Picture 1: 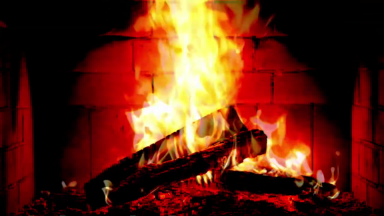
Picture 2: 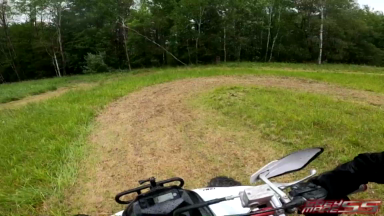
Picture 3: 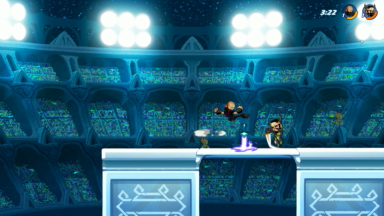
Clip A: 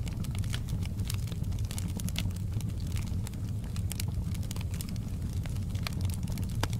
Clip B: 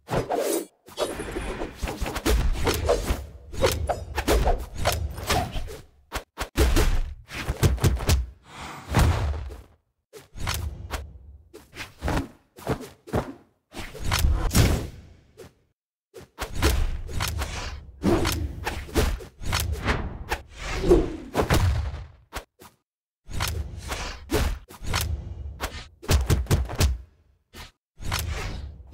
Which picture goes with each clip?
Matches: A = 1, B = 3